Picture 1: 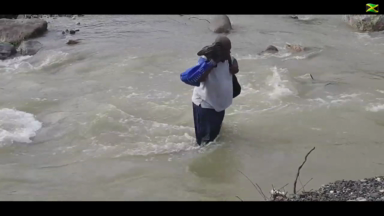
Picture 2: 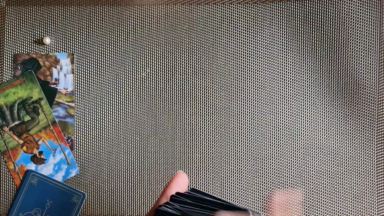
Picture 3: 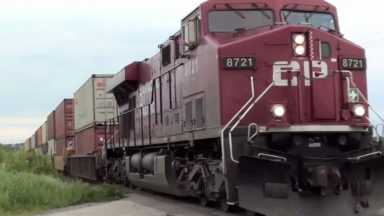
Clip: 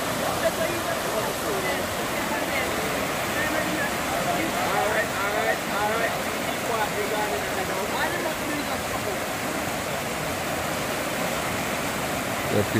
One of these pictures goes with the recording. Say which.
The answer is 1